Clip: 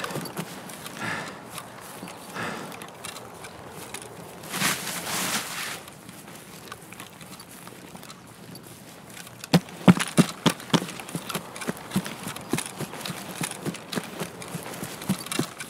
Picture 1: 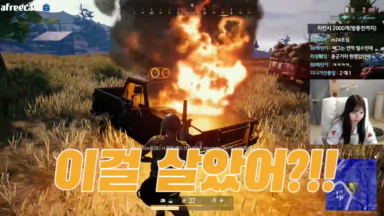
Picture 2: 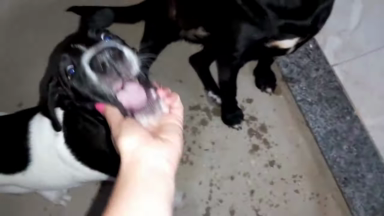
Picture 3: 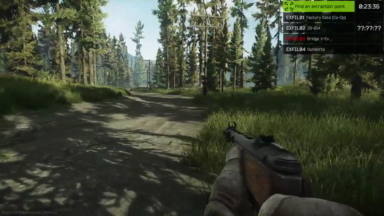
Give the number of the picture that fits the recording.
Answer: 3